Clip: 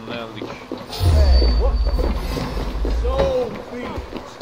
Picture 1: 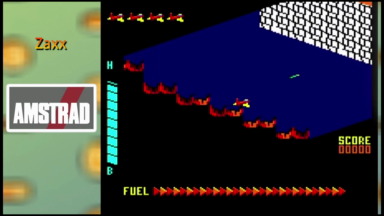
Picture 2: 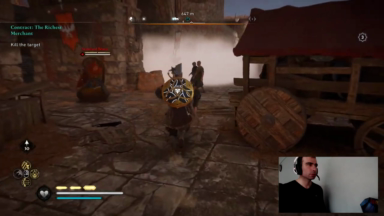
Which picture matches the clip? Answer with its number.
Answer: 2